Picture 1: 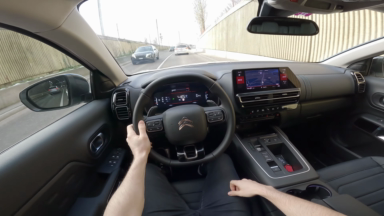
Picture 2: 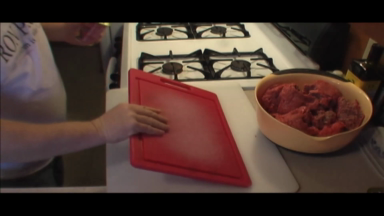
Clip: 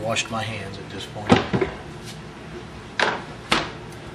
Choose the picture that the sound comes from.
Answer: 2